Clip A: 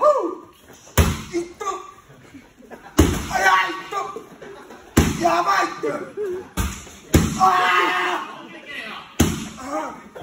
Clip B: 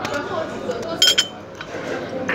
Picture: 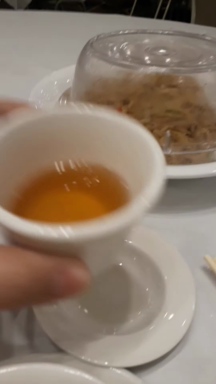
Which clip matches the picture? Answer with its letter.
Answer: B